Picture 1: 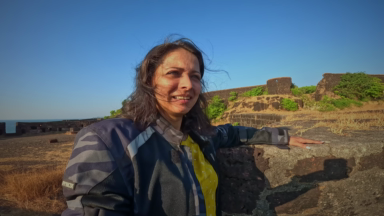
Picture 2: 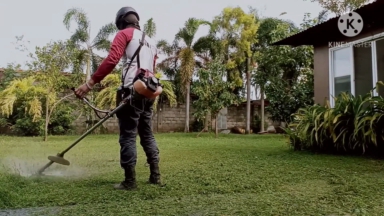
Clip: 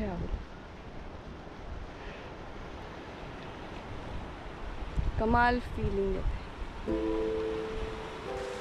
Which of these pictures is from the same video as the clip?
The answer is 1